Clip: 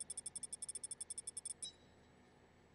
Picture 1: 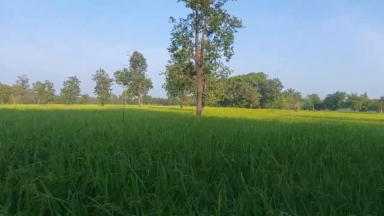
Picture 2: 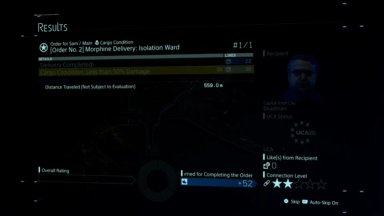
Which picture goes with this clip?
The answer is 2